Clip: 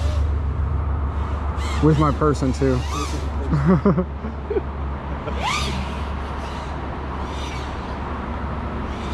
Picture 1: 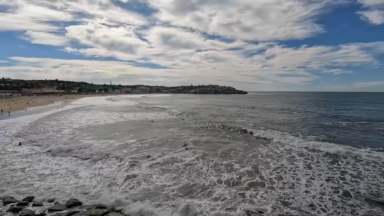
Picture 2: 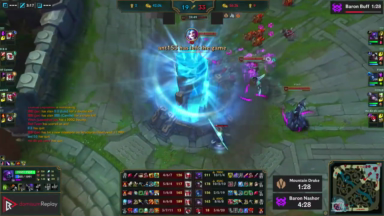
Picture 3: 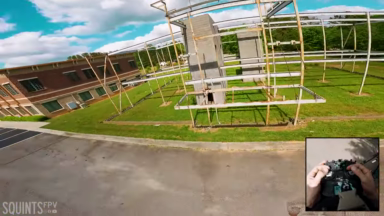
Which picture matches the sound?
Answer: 3